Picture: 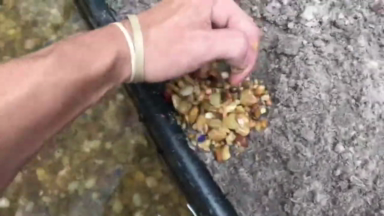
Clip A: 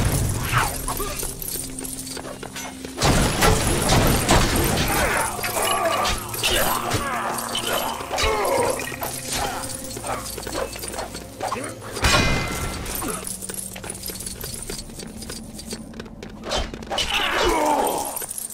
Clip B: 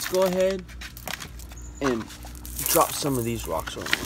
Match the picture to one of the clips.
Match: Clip B